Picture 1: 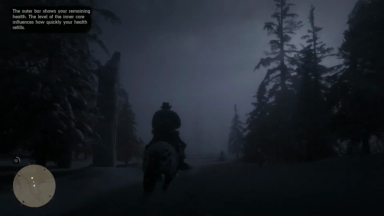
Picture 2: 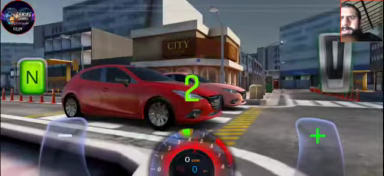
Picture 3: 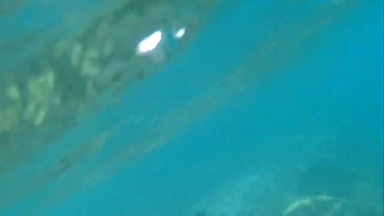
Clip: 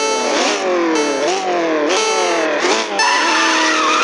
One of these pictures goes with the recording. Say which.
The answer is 2